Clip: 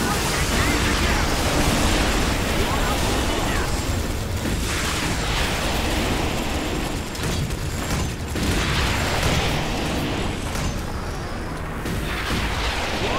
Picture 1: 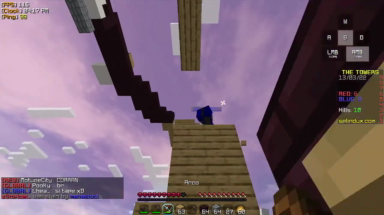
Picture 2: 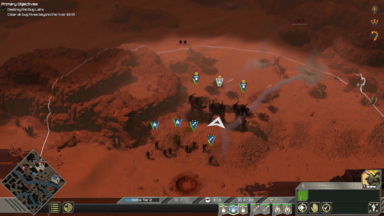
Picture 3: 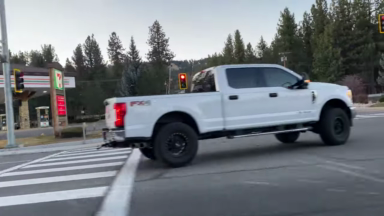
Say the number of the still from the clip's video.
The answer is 2